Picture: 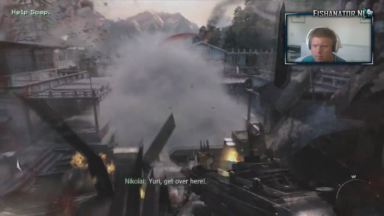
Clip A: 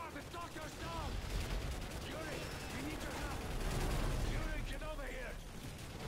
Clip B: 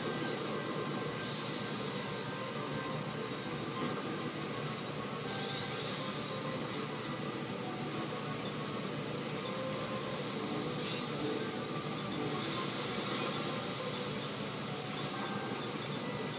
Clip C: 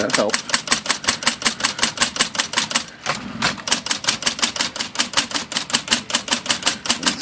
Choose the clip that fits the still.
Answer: A